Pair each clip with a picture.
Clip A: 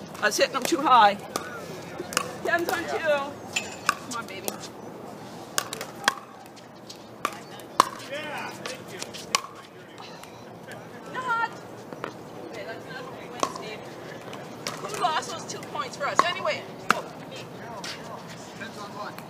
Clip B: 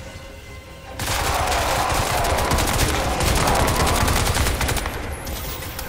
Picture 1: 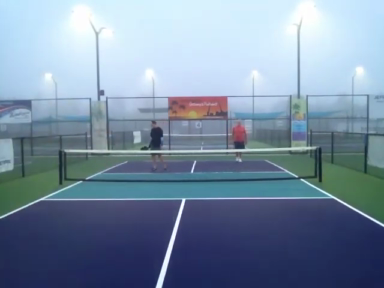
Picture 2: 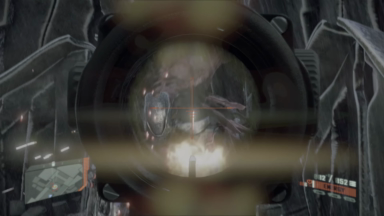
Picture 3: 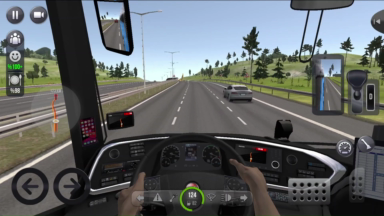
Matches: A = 1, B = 2